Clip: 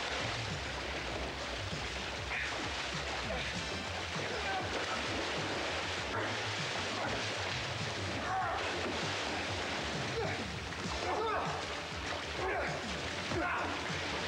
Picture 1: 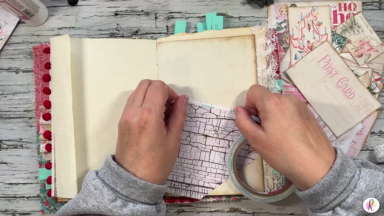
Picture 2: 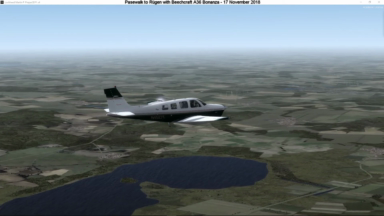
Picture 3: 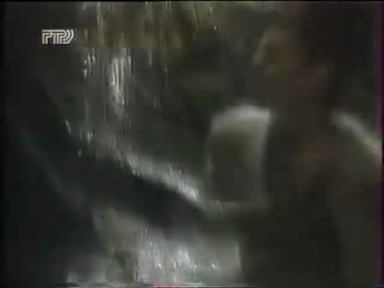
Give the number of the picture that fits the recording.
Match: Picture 3